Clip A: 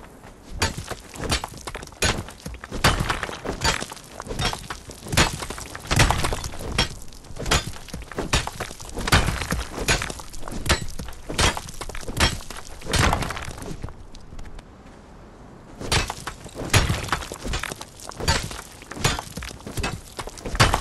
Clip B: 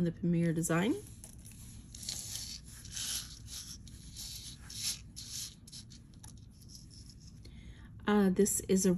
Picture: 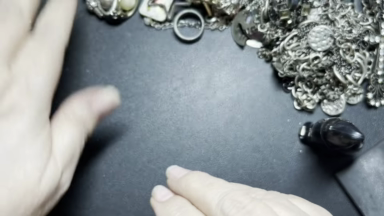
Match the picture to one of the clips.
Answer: B